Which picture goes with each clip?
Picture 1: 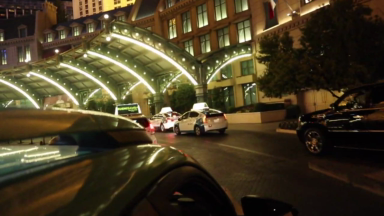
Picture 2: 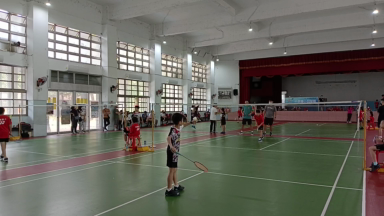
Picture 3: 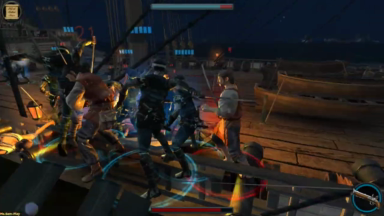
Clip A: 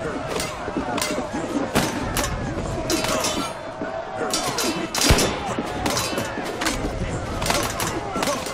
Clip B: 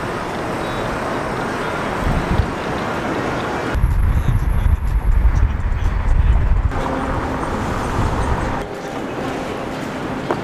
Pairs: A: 3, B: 1